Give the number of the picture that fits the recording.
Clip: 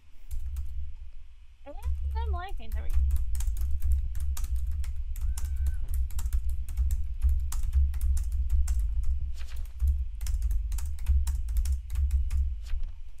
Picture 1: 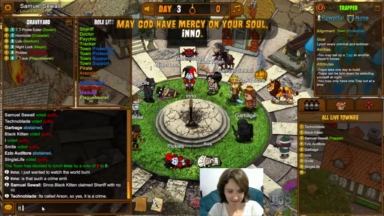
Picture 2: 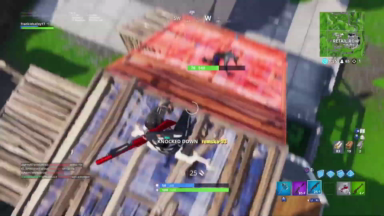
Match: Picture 1